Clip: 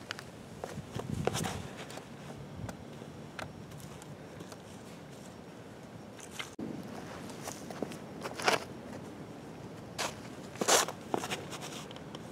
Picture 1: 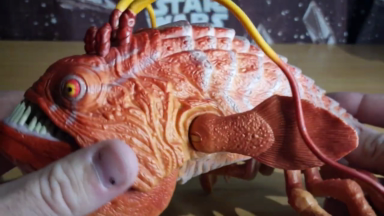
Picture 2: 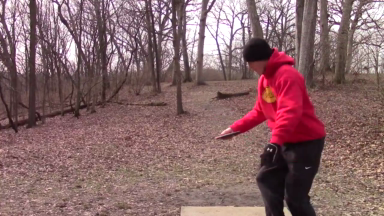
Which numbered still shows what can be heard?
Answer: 2